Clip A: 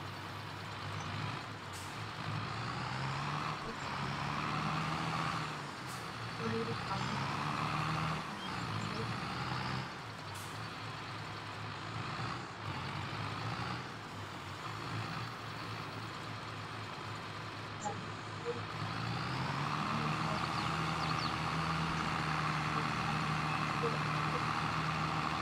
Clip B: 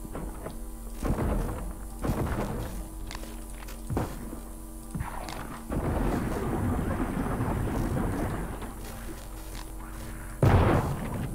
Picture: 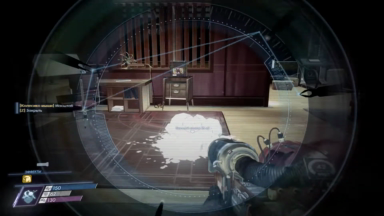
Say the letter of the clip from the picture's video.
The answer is B